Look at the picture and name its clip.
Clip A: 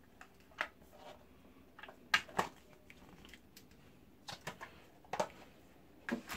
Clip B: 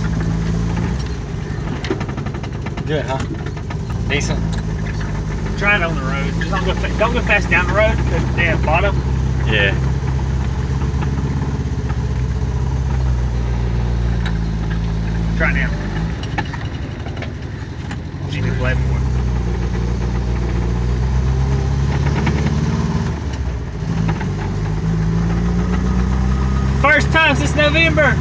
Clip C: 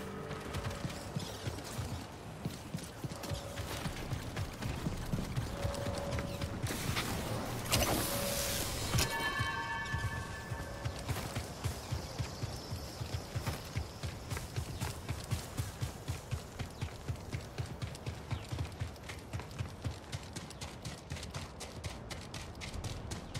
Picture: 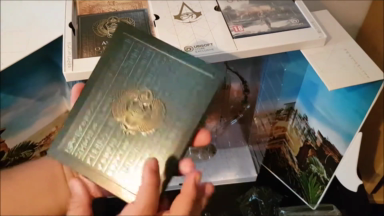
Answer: A